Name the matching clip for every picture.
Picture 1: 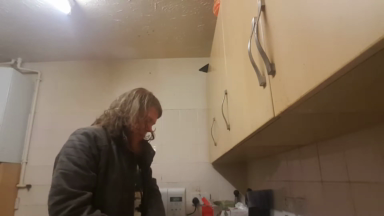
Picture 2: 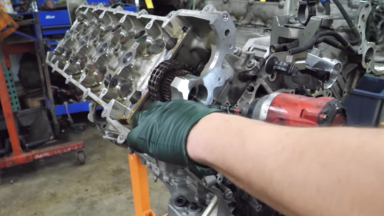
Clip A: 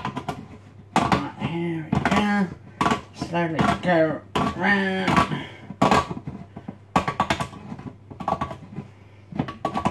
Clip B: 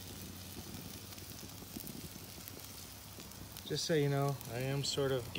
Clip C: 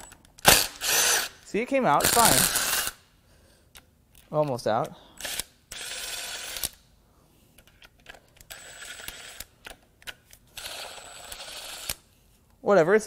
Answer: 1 A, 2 C